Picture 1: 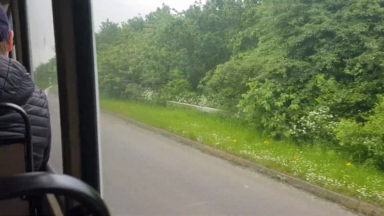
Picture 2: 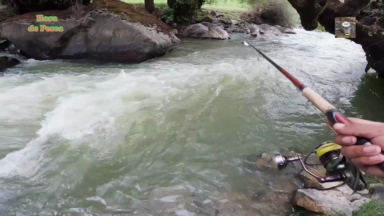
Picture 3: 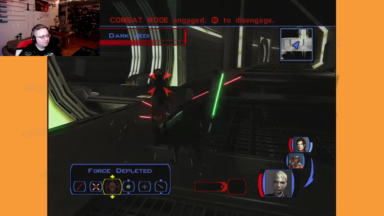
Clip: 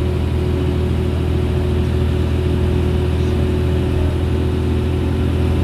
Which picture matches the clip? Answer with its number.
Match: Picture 1